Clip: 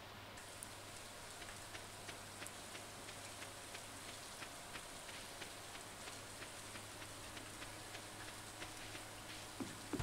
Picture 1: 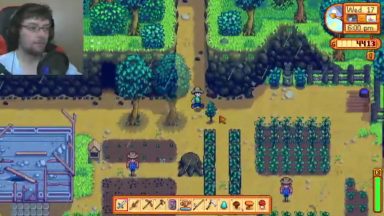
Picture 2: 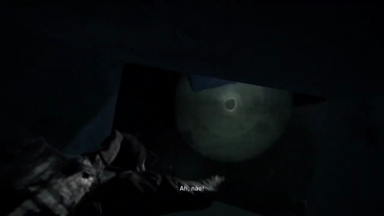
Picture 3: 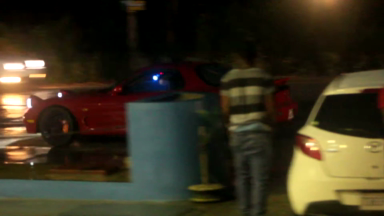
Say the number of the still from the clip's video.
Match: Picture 1